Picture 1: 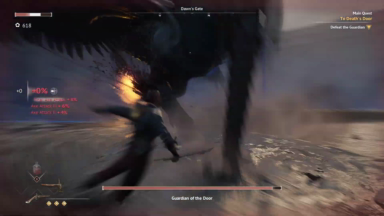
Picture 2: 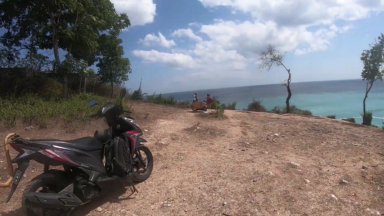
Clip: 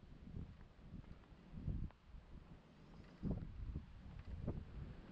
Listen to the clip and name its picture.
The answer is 2